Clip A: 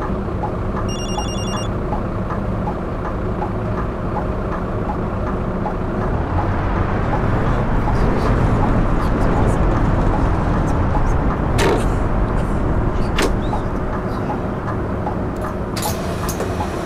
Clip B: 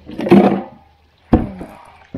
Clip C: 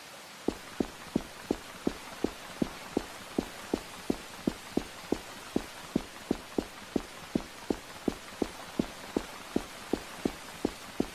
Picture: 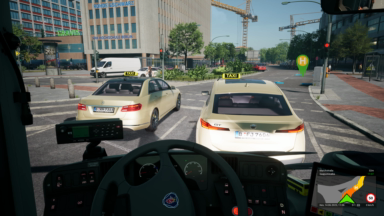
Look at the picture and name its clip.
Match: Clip A